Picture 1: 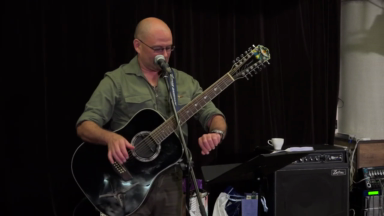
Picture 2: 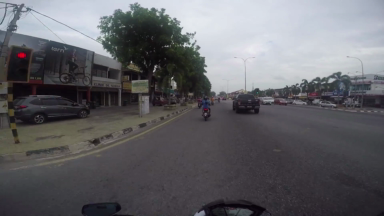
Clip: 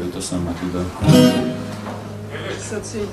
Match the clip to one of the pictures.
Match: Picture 1